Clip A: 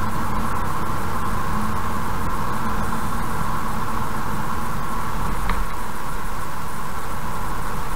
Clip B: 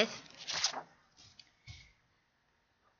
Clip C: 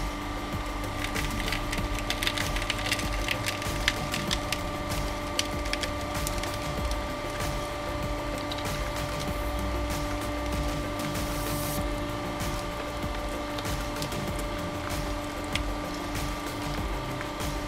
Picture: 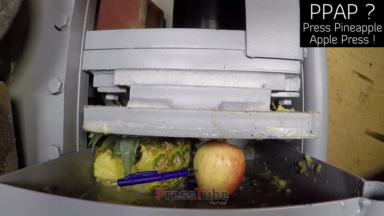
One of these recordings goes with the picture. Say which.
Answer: C